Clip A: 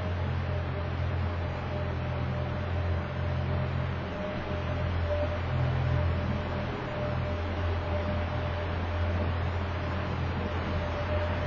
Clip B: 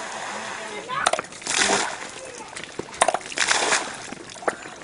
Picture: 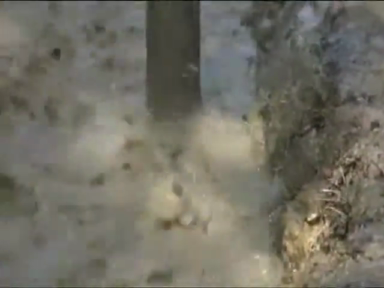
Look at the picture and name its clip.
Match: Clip B